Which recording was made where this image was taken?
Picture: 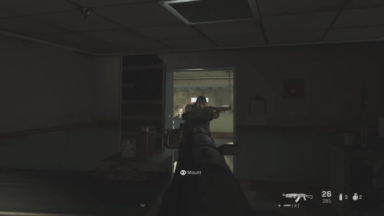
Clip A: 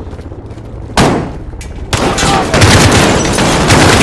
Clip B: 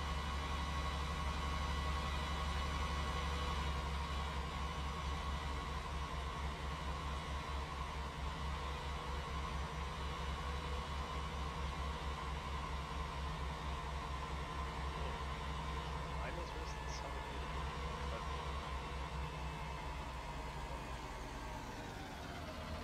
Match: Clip A